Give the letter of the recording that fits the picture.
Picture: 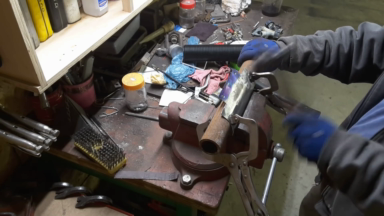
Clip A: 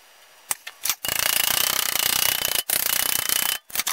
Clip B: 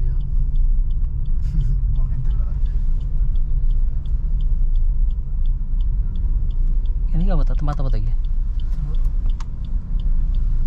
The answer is A